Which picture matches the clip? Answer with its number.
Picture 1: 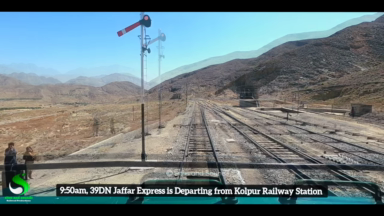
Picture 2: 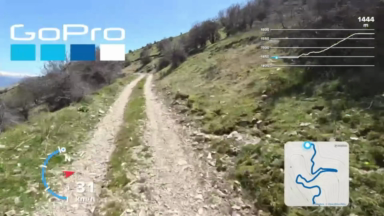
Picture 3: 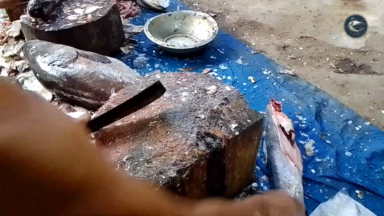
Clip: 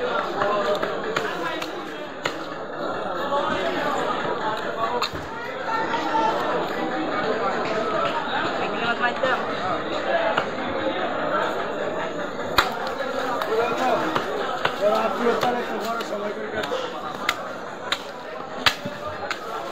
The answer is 3